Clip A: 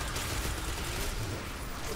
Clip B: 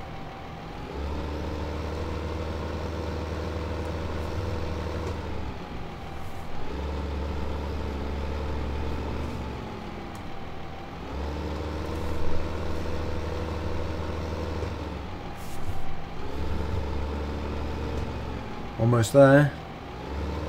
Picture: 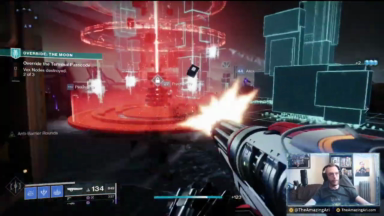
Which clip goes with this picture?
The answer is A